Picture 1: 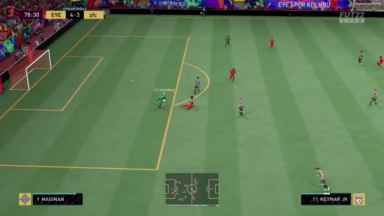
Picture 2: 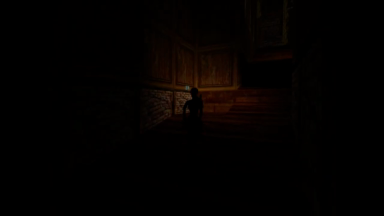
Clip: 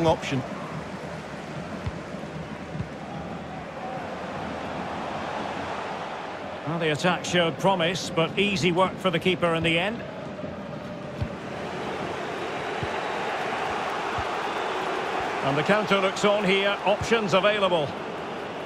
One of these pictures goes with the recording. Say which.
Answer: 1